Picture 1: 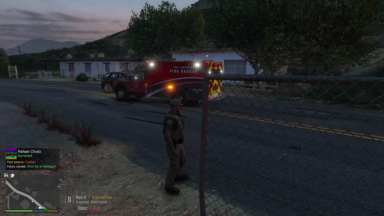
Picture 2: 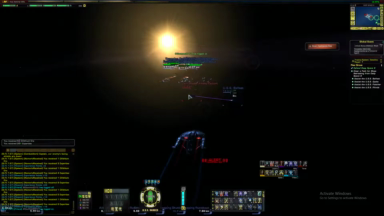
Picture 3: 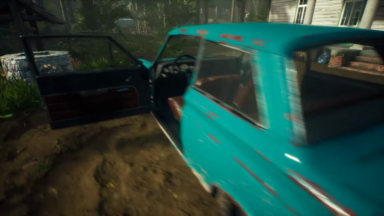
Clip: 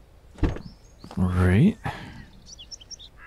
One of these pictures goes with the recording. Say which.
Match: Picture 3